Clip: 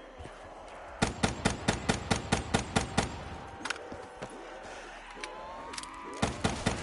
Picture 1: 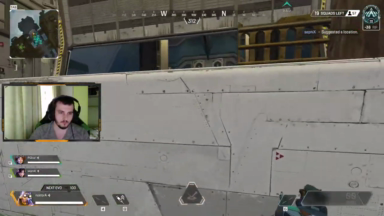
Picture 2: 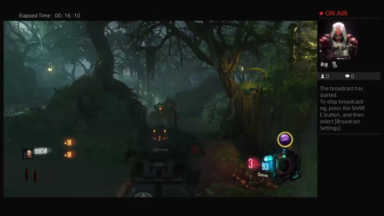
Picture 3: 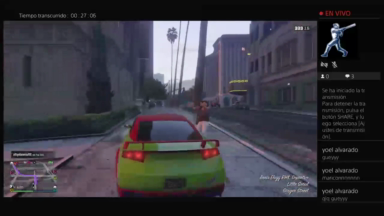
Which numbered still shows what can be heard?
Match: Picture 2